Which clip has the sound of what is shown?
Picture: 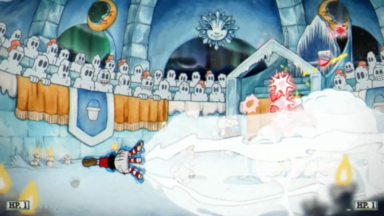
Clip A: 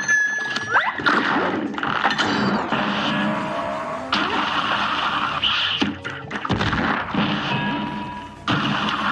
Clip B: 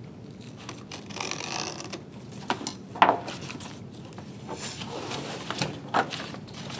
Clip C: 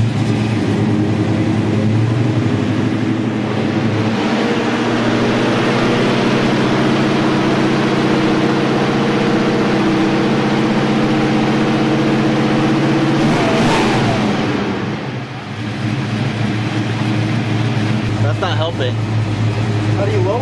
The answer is A